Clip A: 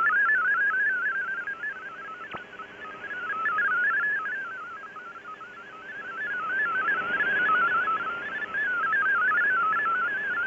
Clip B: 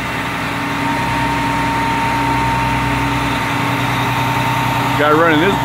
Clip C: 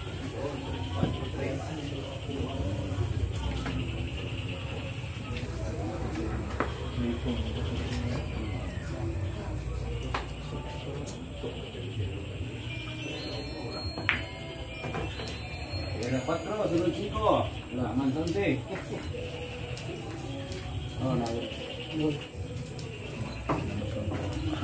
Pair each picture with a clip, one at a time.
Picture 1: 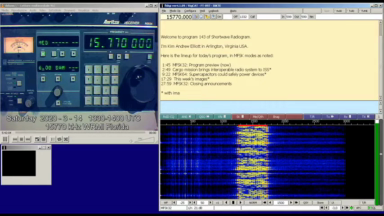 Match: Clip A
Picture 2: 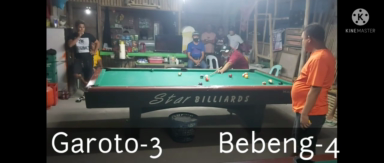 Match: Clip C